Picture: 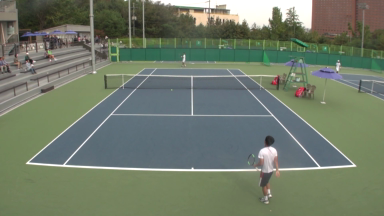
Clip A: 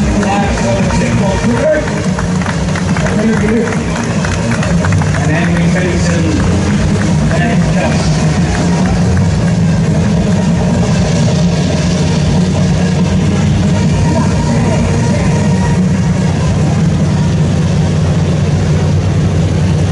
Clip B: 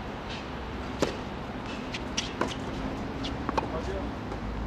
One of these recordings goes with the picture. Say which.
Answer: B